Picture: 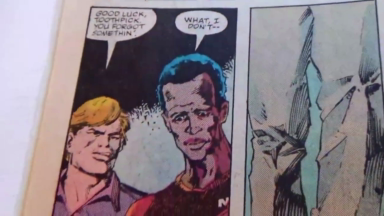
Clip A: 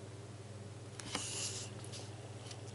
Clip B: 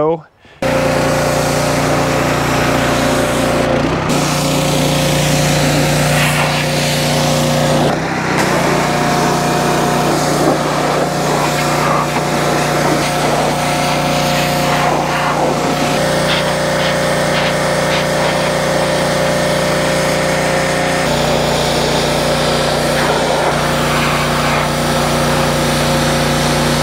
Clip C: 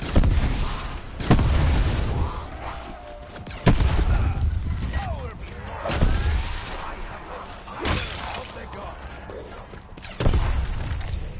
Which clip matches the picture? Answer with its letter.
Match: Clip A